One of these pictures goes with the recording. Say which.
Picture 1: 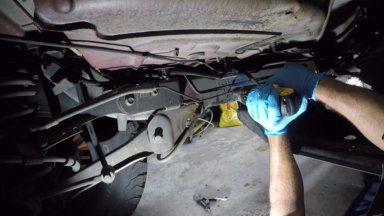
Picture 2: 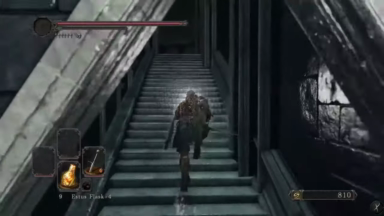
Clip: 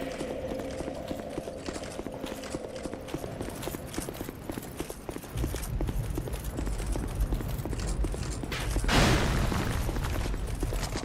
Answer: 2